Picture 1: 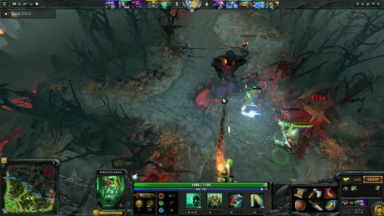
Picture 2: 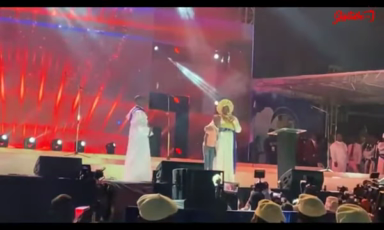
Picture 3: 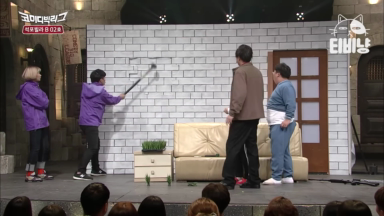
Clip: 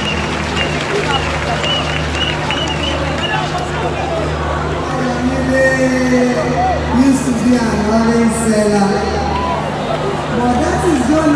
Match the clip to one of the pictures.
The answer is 2